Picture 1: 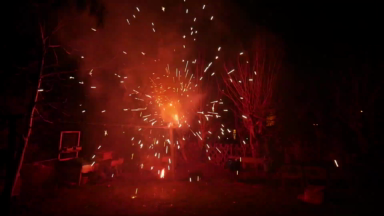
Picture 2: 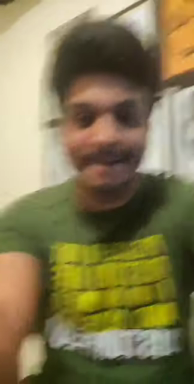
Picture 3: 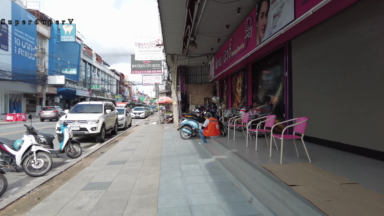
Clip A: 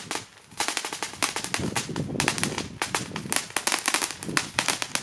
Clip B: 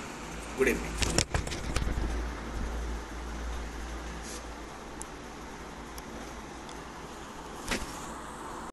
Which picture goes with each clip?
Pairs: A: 1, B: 2